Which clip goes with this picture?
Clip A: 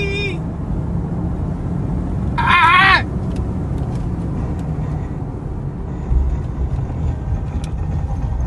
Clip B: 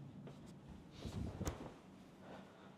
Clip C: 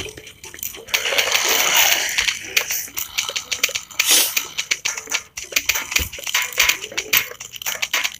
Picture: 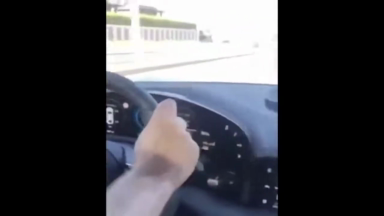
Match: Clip A